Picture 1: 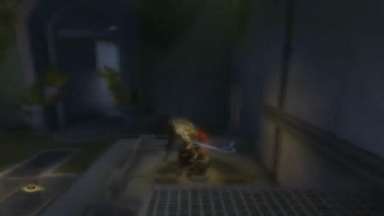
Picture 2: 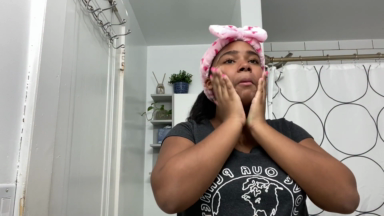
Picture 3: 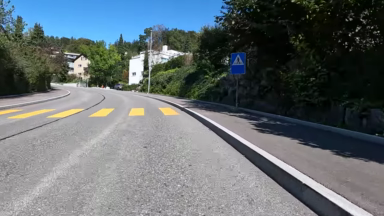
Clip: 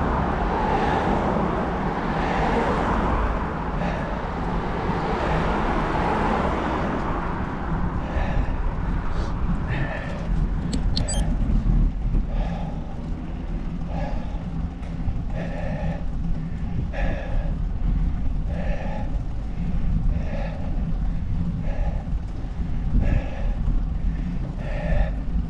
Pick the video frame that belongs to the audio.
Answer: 3